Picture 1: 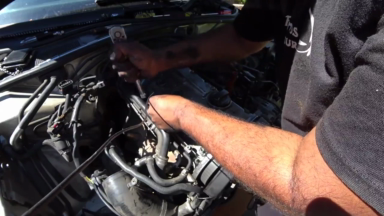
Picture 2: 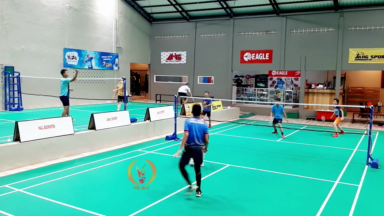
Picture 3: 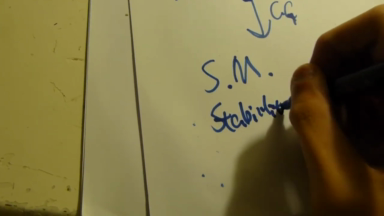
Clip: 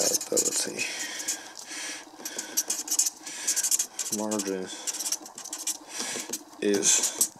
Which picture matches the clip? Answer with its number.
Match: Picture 3